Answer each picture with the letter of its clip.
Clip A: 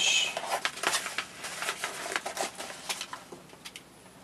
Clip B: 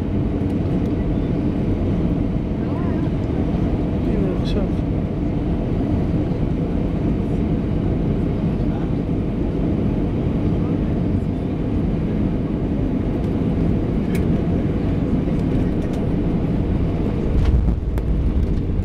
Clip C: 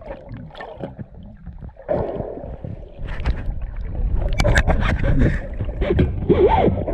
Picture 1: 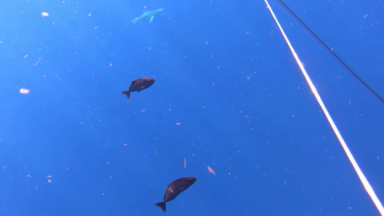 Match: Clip C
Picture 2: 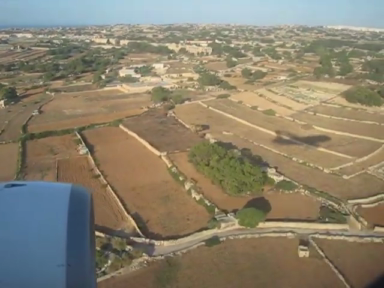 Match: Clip B